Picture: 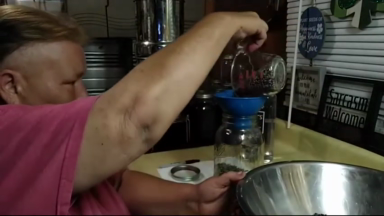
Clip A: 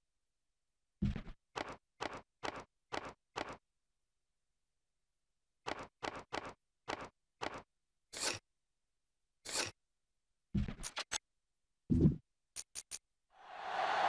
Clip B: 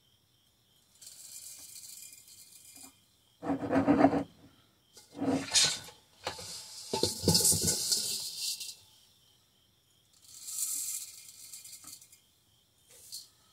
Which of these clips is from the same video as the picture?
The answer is B